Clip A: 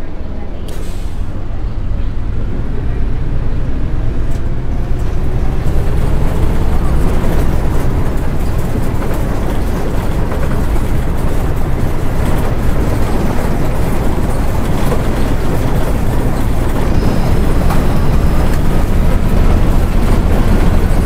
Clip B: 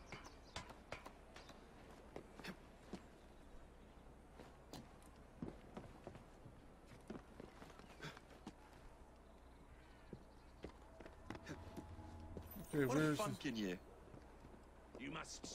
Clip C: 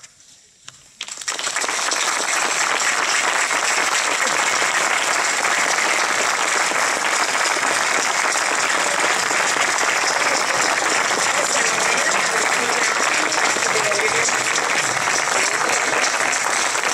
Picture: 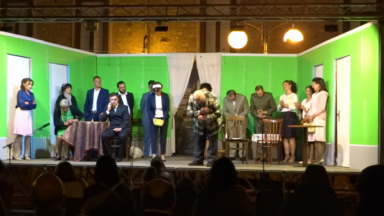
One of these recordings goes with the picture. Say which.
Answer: C